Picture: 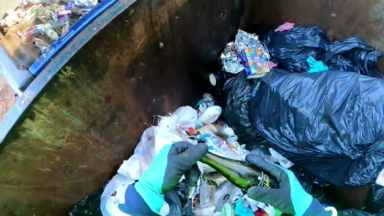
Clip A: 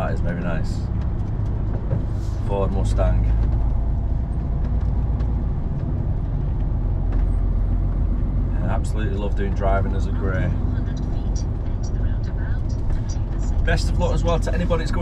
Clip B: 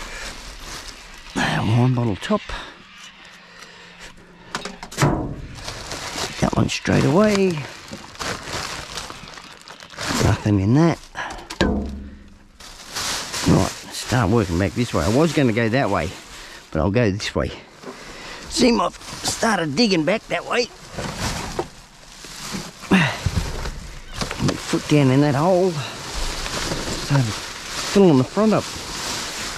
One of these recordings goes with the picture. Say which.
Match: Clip B